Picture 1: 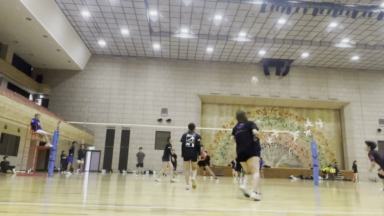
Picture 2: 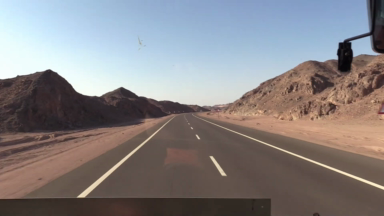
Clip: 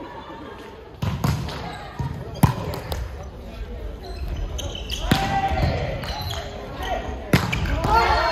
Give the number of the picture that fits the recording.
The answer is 1